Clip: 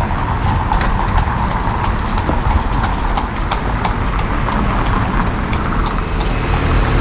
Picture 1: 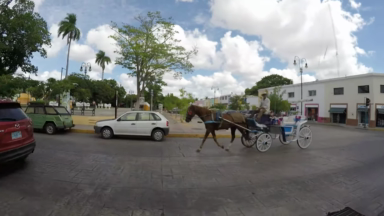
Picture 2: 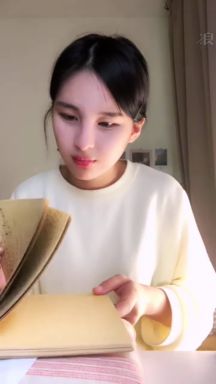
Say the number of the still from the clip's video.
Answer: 1